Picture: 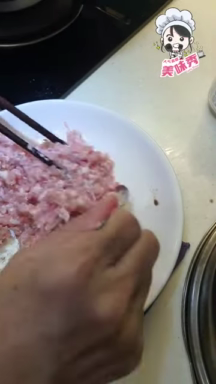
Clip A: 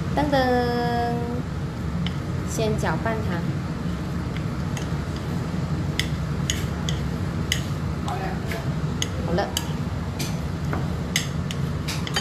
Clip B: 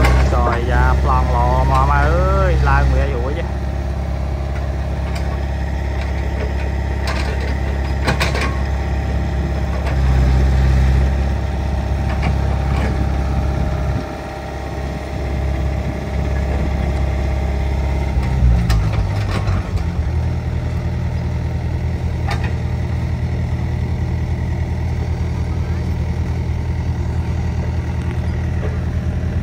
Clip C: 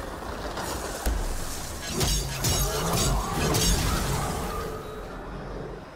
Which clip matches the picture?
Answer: A